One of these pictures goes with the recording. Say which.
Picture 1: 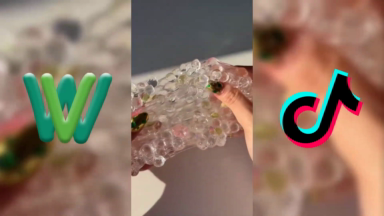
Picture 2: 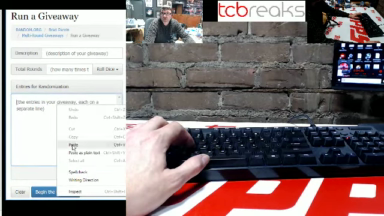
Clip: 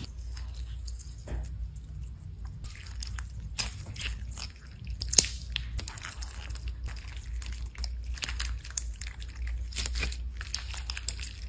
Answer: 1